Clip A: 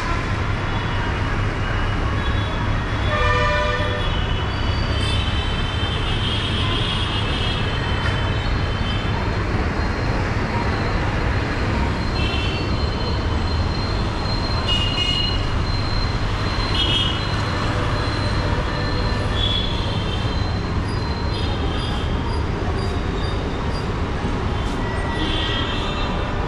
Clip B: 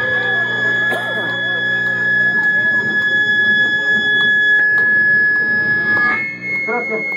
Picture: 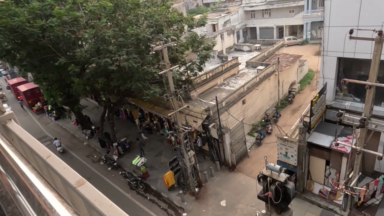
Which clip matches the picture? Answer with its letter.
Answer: A